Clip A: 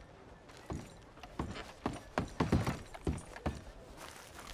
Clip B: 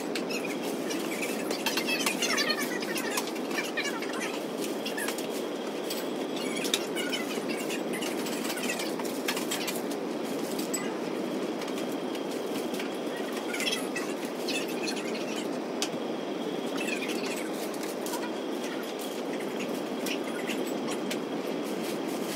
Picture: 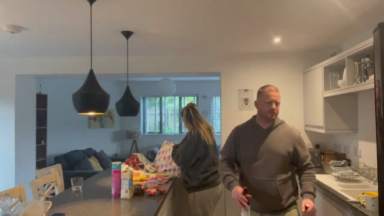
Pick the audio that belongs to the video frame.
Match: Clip B